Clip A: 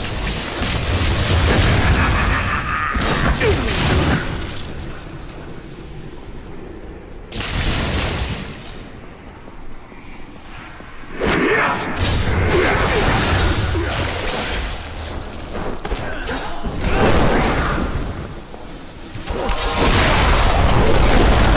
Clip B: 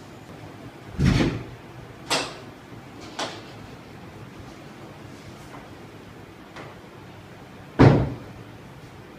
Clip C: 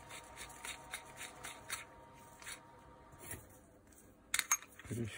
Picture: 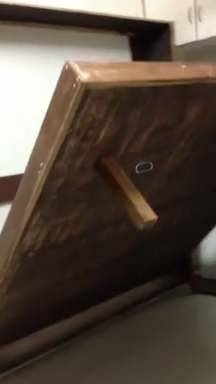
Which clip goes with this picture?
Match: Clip B